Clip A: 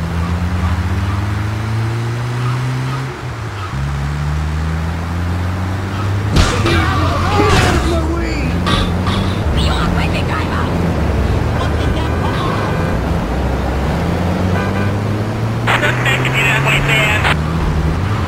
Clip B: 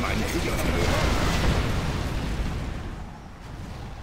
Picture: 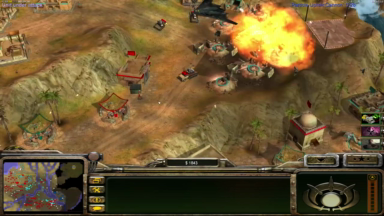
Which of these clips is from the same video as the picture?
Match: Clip B